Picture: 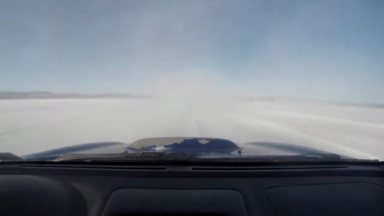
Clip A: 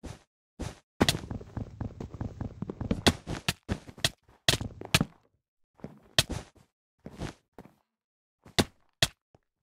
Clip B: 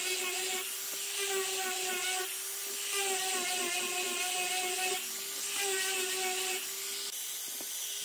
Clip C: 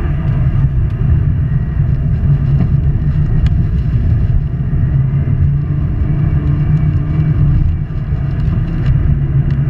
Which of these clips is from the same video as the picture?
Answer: C